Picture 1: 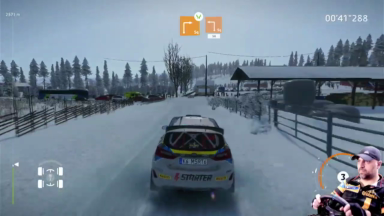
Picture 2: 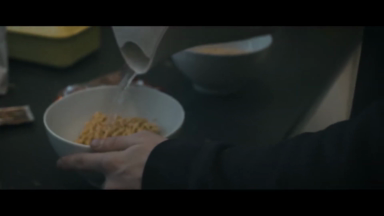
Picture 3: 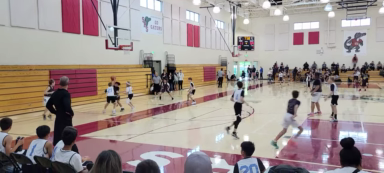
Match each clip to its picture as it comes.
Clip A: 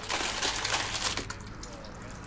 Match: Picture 2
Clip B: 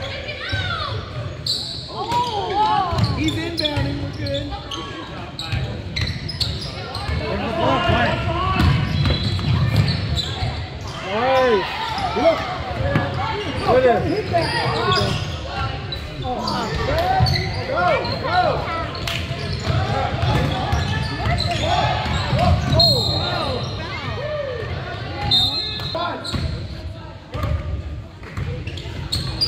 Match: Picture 3